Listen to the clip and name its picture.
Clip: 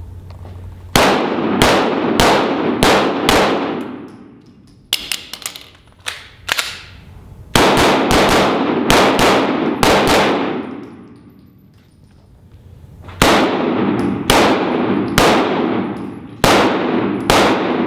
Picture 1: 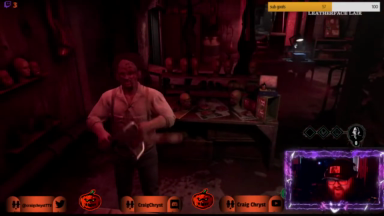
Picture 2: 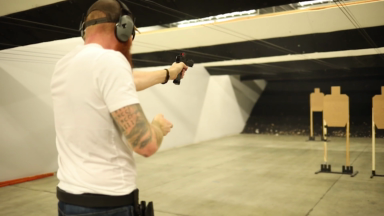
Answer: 2